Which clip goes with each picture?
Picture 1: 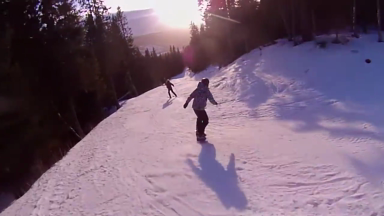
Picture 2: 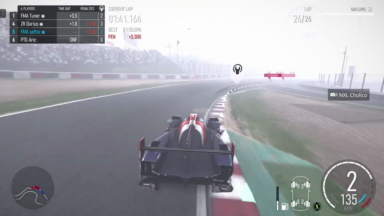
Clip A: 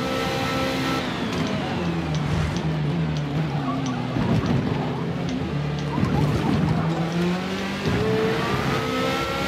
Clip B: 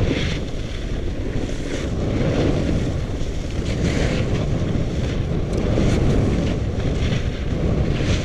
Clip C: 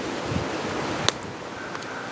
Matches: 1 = B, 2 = A